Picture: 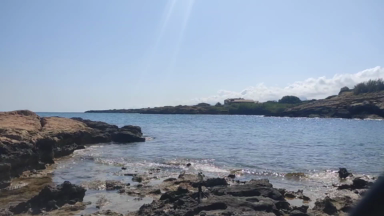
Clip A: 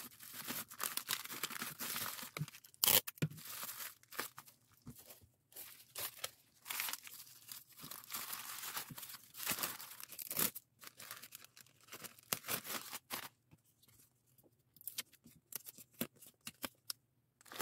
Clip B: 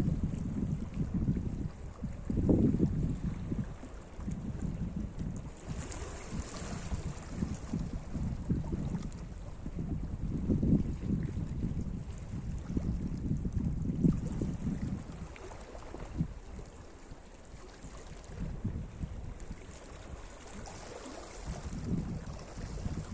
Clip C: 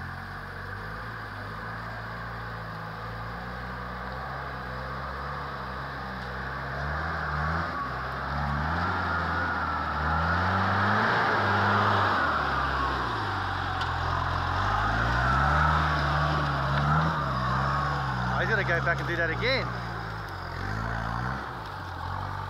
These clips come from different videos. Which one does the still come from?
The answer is B